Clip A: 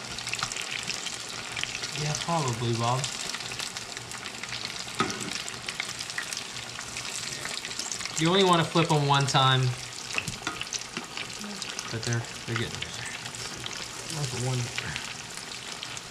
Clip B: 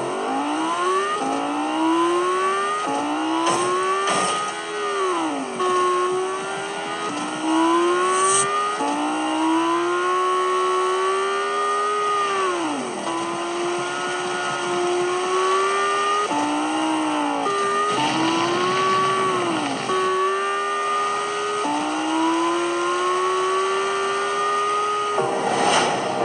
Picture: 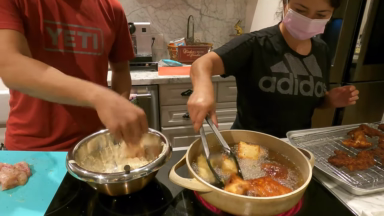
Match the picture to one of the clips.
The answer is A